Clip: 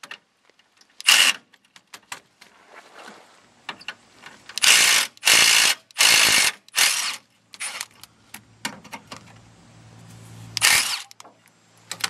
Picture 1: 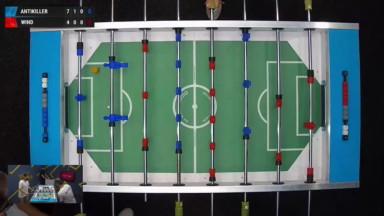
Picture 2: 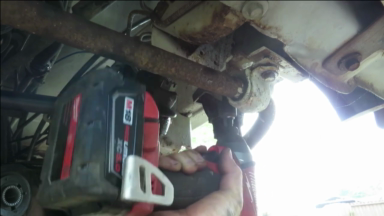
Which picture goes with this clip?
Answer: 2